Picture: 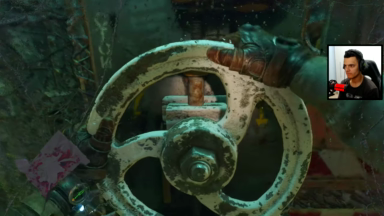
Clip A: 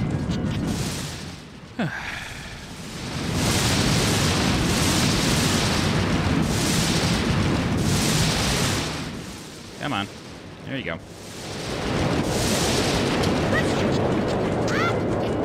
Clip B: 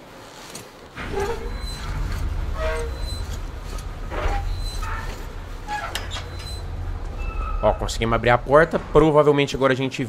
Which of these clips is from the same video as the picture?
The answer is B